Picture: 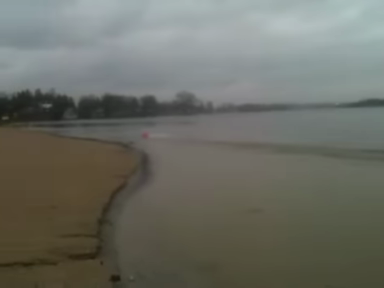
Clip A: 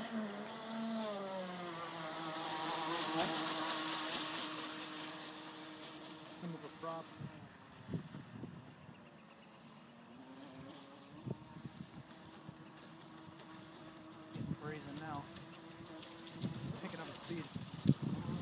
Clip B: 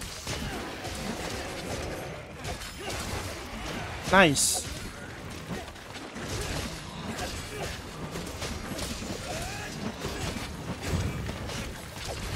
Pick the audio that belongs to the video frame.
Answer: A